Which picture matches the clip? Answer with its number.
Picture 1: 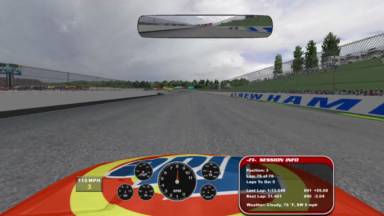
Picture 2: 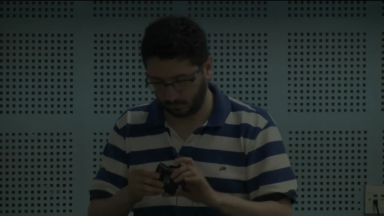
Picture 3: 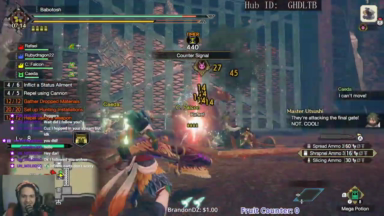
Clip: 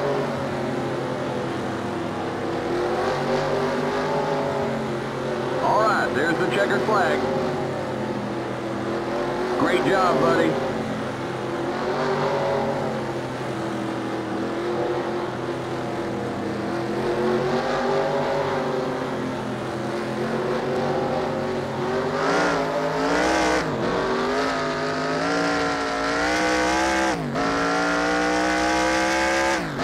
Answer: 1